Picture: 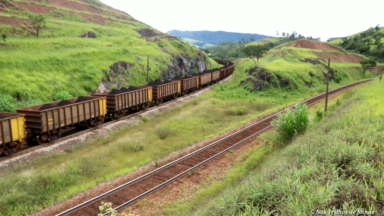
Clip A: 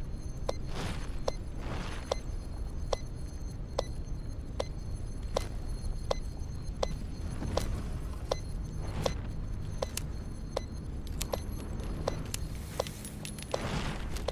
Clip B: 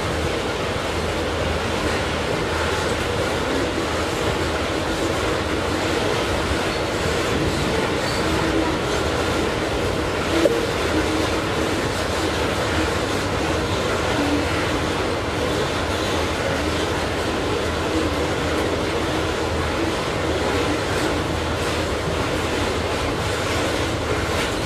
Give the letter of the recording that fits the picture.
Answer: B